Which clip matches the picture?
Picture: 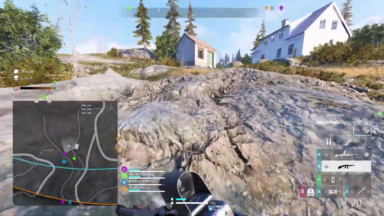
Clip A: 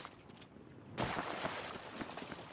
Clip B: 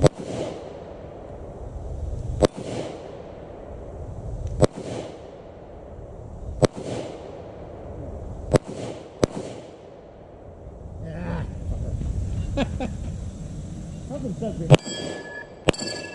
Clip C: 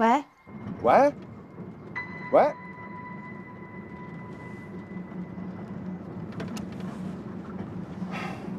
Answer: A